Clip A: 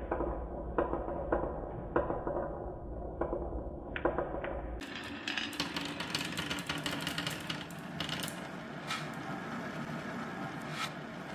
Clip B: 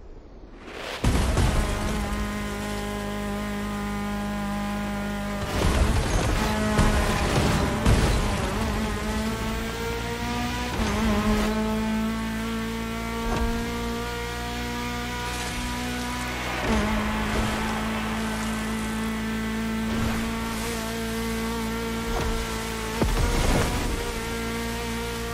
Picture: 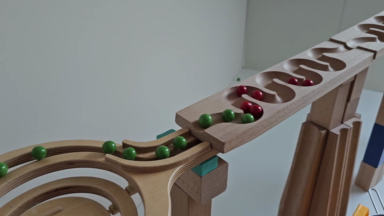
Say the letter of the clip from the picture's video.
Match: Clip A